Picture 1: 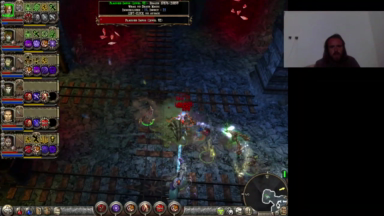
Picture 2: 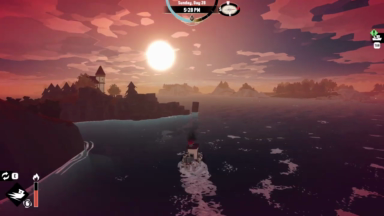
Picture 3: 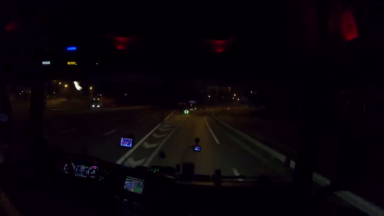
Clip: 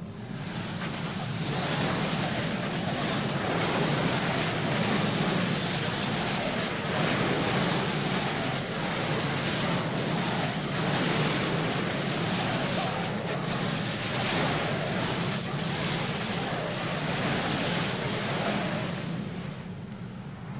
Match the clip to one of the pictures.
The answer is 1